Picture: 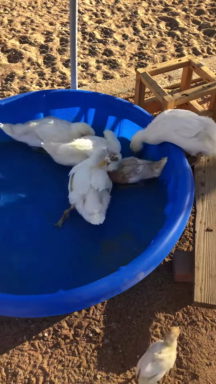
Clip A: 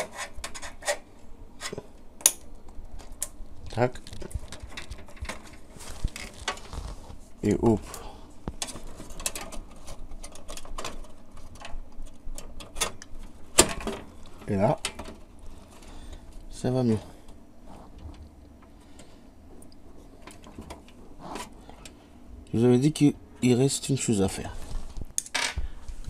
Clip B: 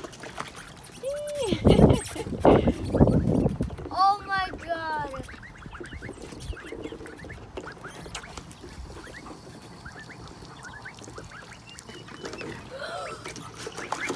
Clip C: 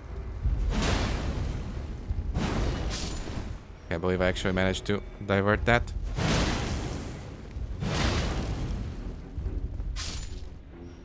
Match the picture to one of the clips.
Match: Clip B